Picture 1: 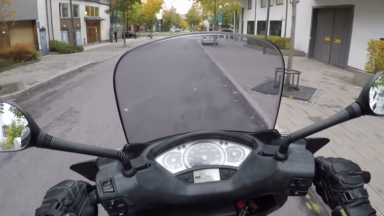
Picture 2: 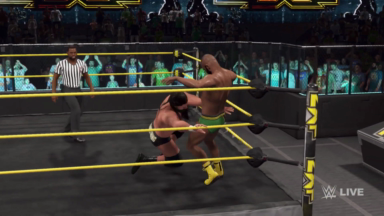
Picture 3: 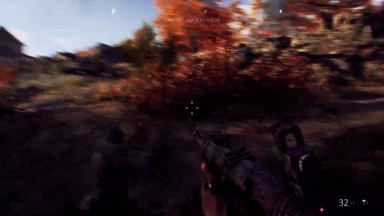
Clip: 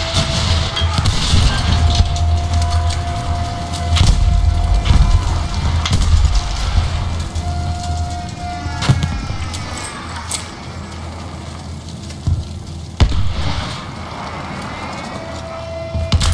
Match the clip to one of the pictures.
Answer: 3